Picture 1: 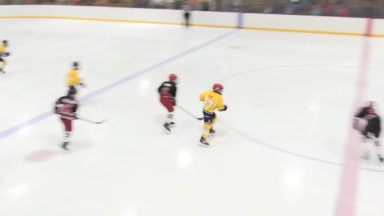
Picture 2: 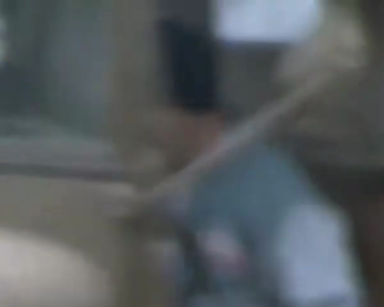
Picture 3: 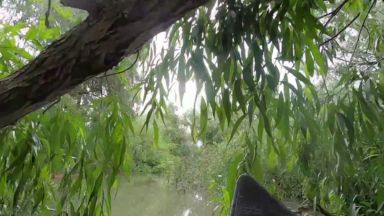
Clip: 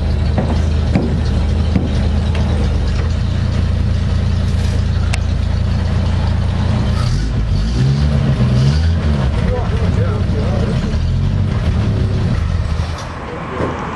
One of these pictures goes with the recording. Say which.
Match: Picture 2